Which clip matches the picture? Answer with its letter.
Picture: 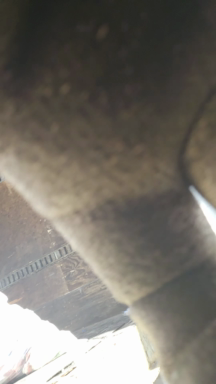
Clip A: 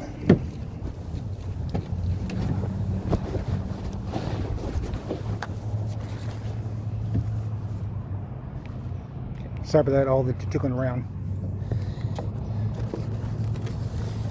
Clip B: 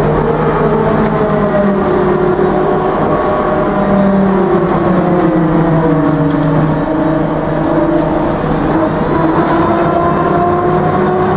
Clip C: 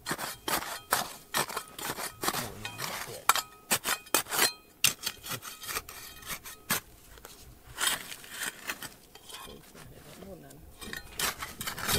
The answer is A